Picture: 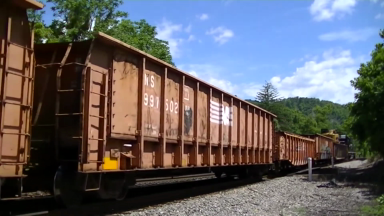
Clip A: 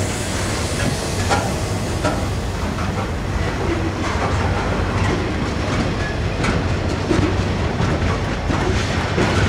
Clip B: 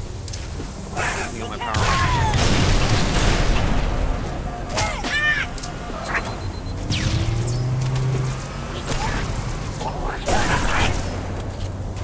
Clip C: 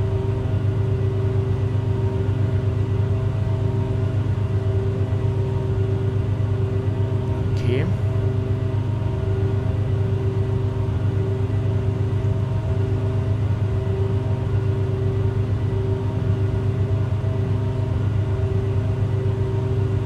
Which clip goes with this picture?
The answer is A